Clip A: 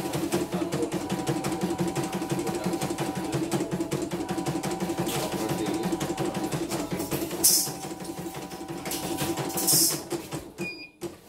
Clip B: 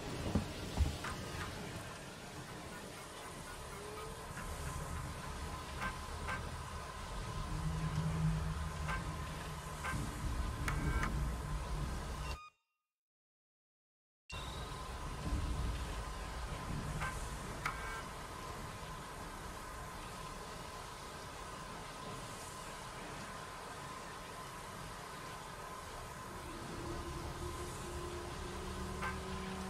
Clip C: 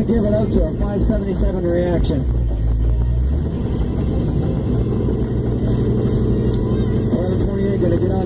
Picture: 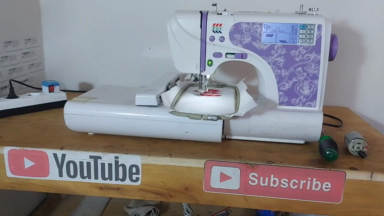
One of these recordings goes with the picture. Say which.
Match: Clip A